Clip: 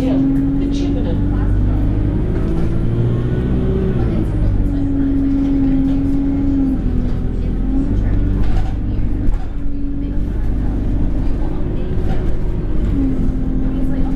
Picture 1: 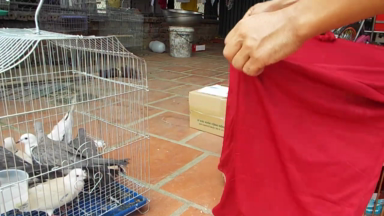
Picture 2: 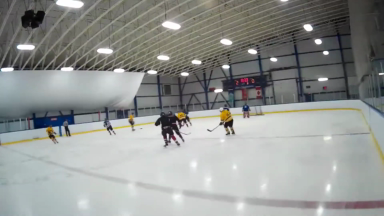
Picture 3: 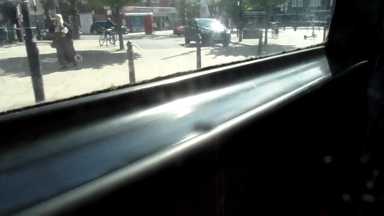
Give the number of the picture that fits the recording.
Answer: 3